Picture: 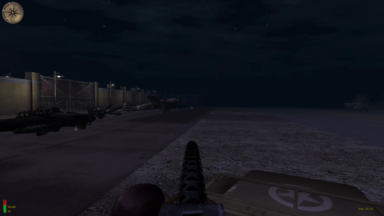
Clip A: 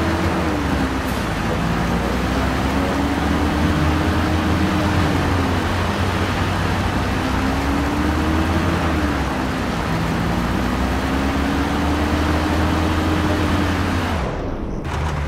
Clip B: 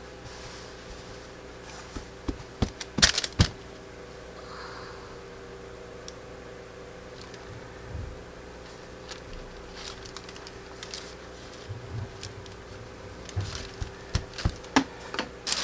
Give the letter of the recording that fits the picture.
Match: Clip A